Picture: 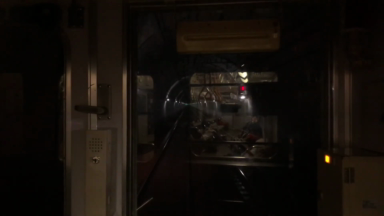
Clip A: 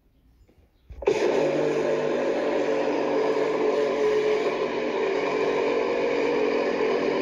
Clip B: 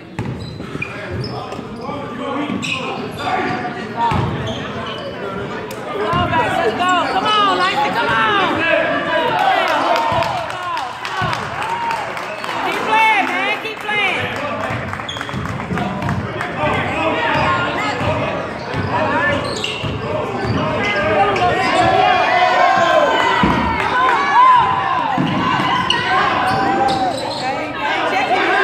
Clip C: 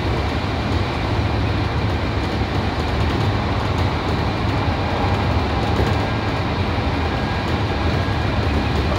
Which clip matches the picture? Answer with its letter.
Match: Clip C